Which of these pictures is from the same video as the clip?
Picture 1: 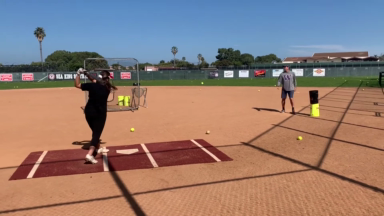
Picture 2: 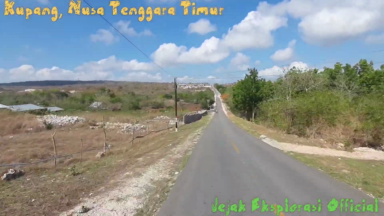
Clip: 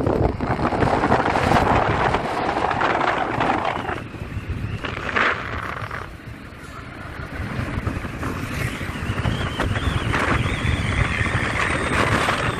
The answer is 2